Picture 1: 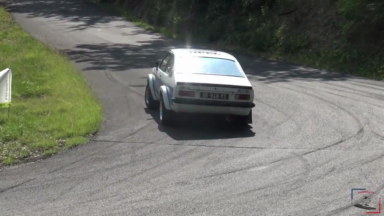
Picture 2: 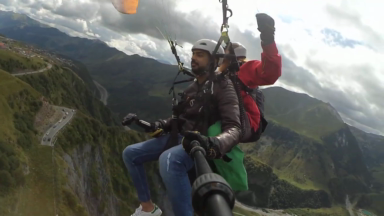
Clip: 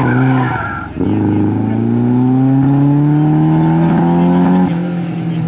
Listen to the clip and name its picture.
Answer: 1